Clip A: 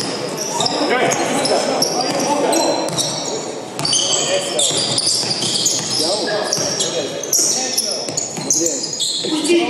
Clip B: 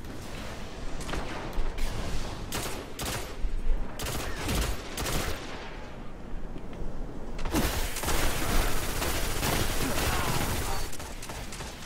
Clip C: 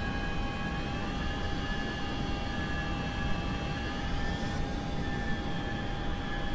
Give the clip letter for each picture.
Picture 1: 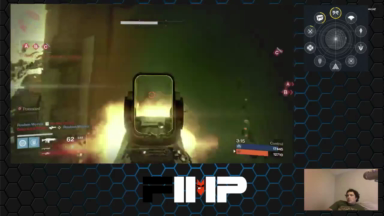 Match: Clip B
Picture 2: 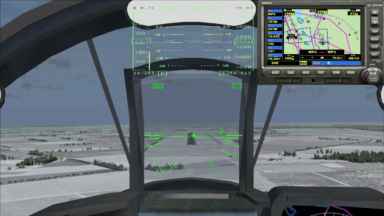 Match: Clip C